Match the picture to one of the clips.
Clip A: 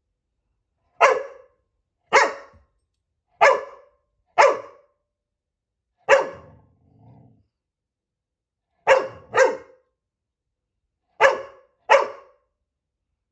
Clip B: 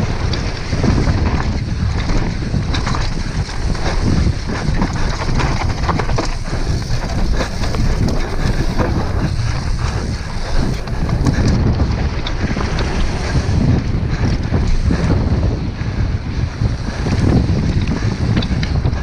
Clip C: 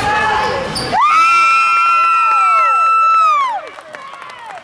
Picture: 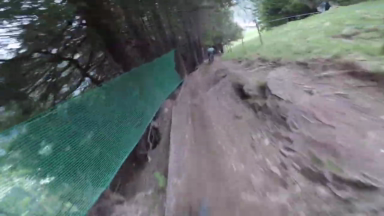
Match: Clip B